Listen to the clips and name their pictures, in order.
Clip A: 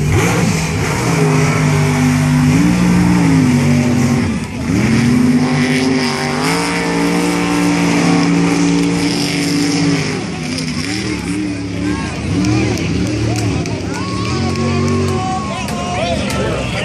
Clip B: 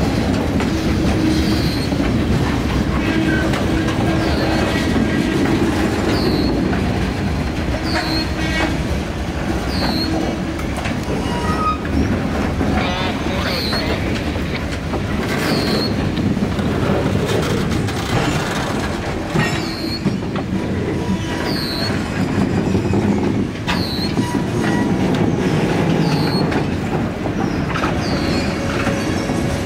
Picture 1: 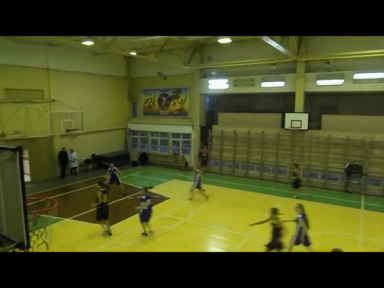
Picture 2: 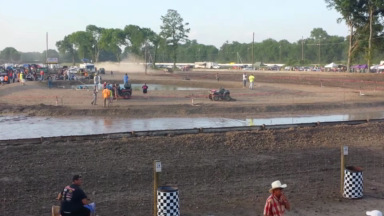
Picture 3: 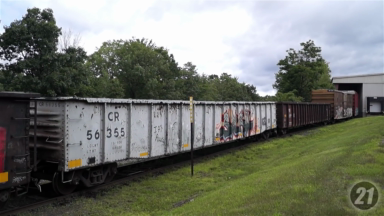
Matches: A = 2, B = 3